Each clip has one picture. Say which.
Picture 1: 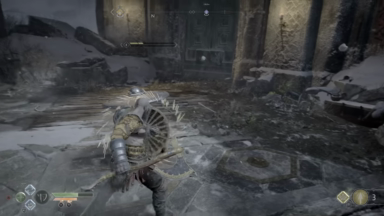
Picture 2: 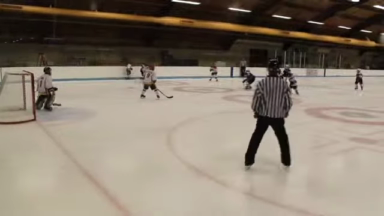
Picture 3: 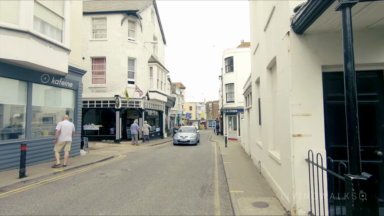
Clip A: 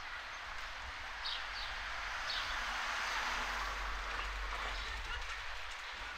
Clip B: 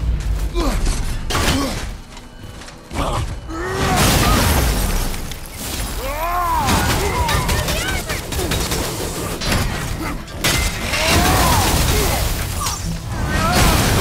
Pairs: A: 3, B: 1